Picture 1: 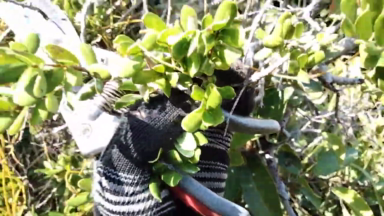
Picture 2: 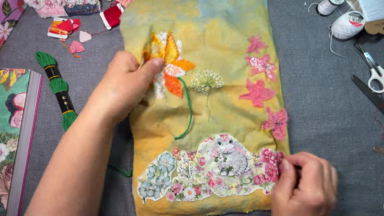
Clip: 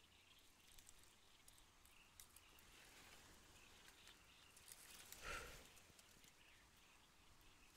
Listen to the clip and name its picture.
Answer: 1